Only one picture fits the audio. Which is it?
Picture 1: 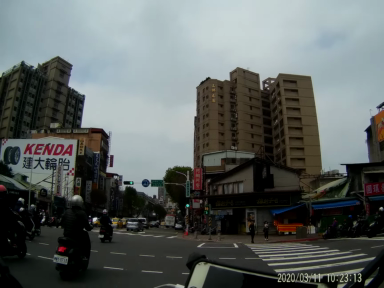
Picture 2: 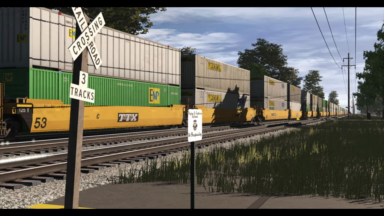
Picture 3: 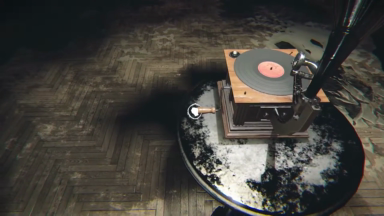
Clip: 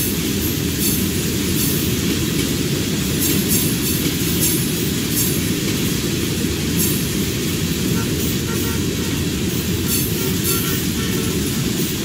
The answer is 2